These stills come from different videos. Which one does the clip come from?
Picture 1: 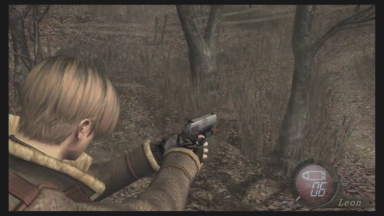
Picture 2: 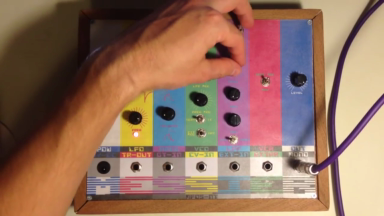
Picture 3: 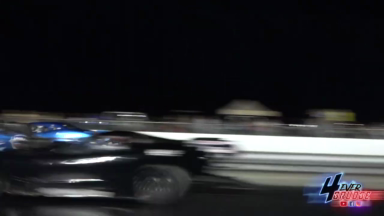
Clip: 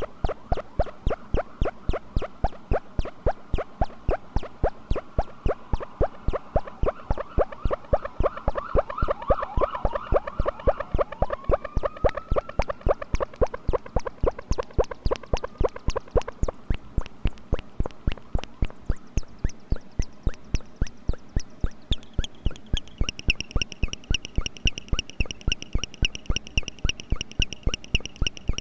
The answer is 2